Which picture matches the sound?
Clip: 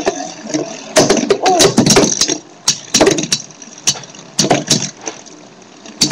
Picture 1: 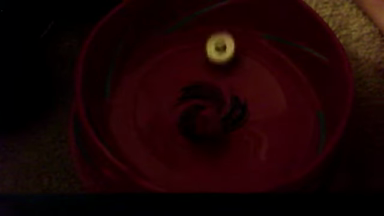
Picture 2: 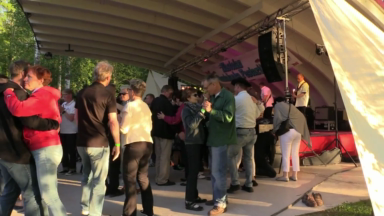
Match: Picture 1